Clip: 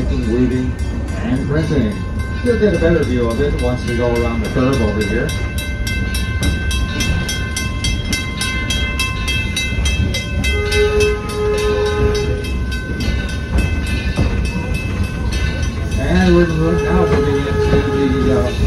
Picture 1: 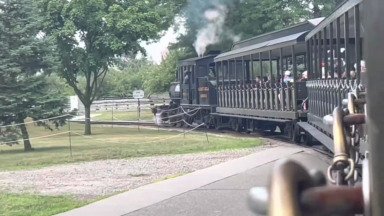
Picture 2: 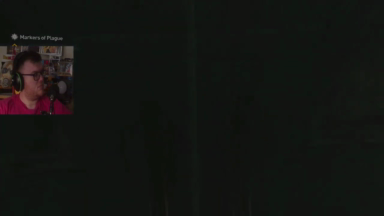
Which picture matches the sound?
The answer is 1